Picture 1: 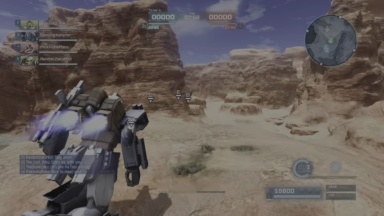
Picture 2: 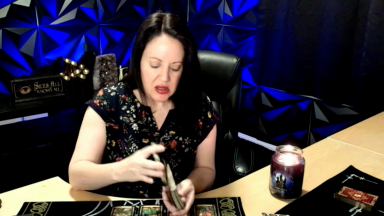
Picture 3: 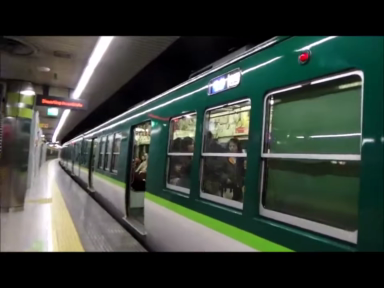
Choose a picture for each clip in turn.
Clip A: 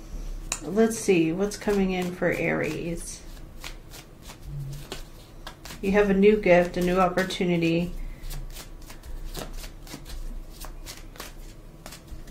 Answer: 2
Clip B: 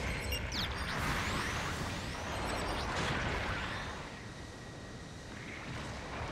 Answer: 1